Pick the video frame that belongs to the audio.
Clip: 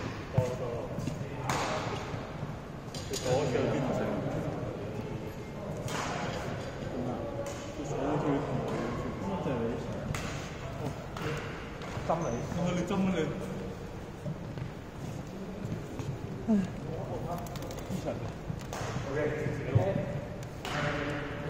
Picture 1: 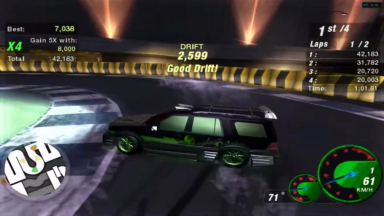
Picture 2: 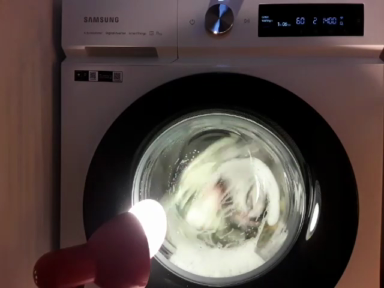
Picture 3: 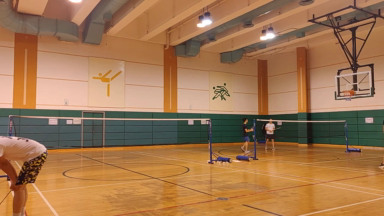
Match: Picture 3